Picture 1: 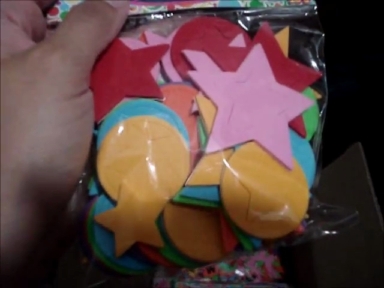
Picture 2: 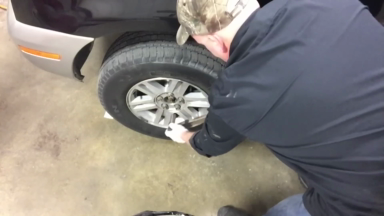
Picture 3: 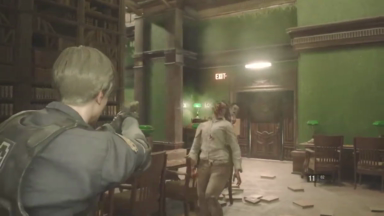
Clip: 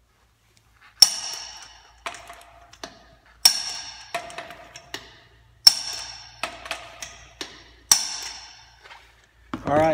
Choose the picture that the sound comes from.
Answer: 2